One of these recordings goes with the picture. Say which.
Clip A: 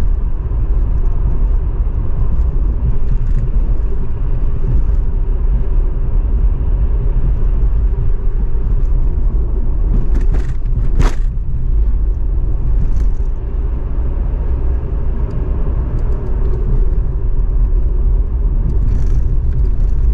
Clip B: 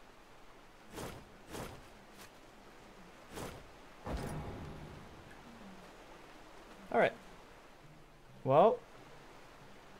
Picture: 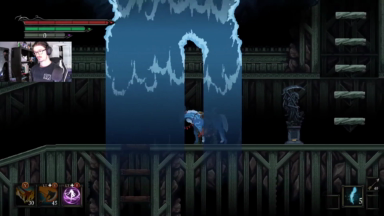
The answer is B